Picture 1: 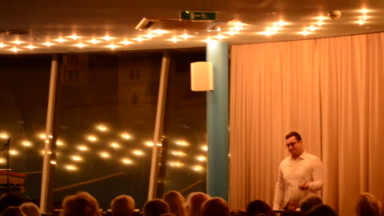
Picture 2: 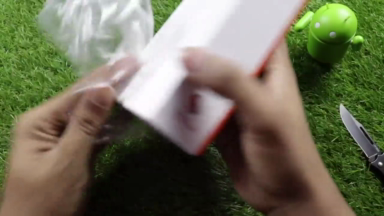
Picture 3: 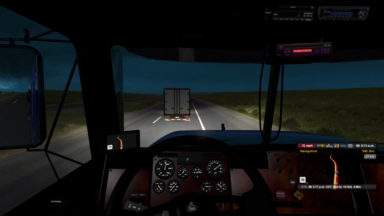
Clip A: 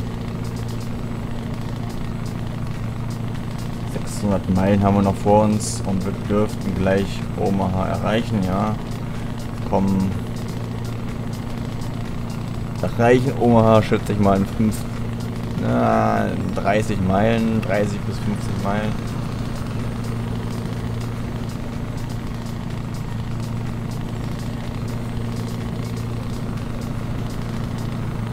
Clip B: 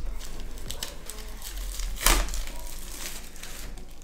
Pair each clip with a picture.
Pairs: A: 3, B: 2